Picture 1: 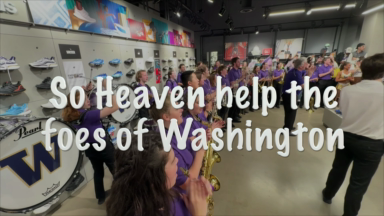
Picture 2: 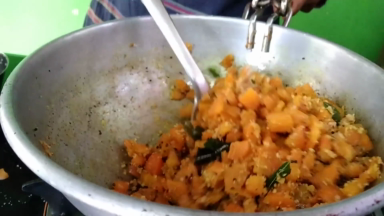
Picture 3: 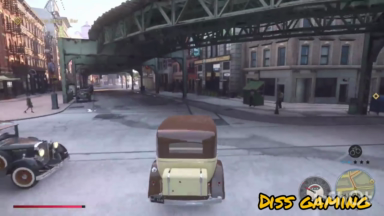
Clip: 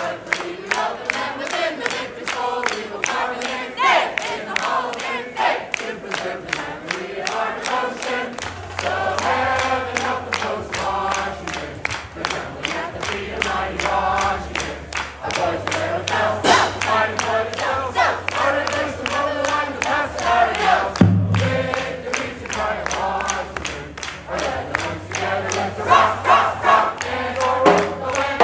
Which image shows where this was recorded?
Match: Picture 1